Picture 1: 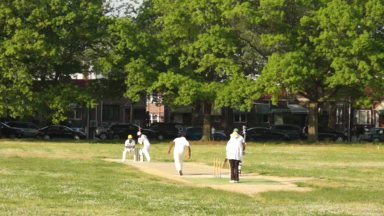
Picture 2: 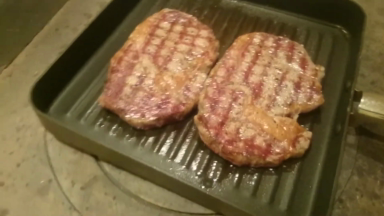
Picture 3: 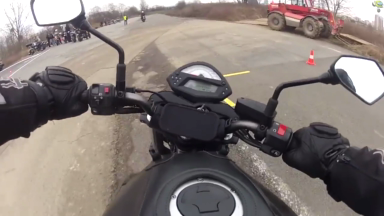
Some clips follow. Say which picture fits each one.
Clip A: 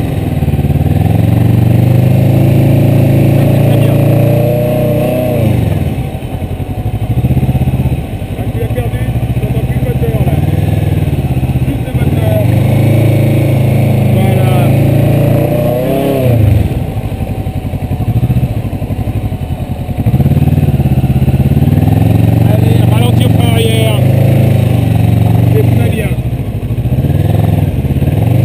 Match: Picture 3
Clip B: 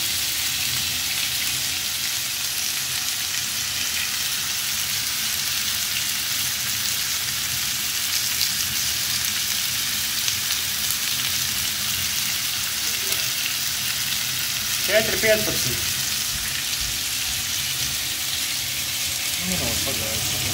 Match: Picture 2